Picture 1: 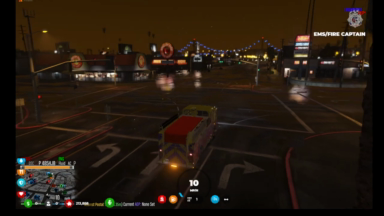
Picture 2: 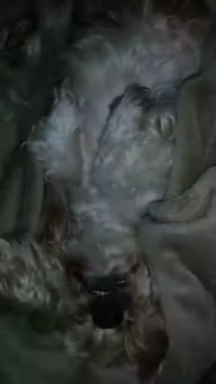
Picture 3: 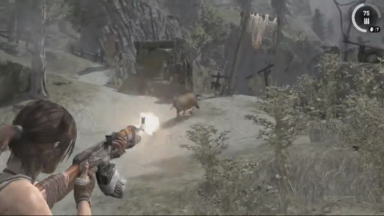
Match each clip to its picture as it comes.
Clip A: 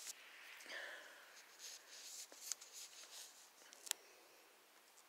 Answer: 2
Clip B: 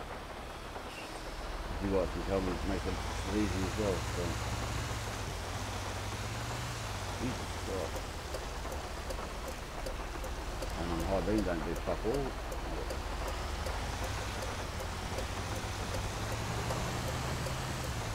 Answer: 1